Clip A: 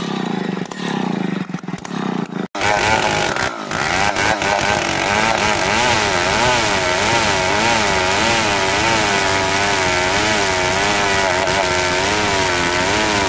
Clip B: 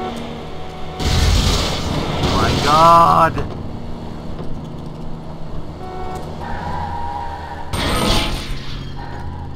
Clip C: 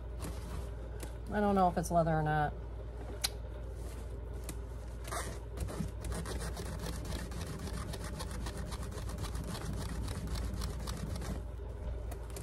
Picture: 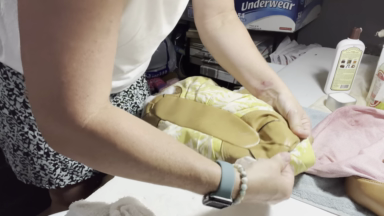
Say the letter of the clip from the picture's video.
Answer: C